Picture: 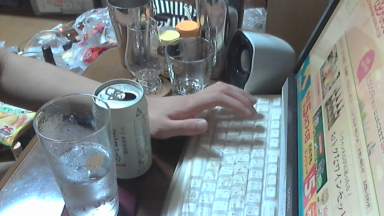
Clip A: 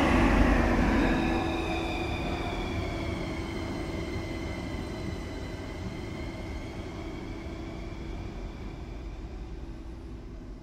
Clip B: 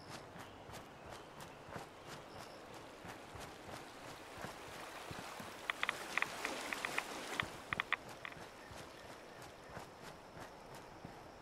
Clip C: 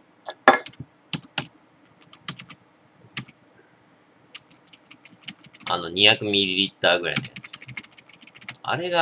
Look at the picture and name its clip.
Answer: C